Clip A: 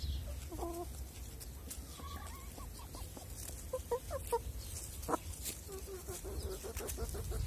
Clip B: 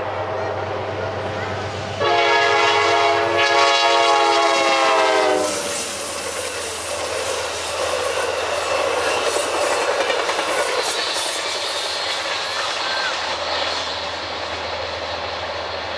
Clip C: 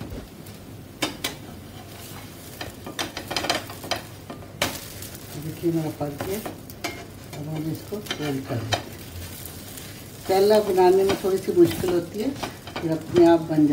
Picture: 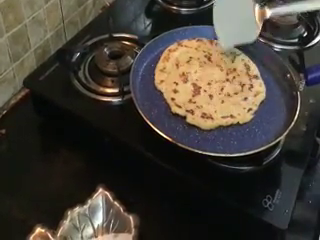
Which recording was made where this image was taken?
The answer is C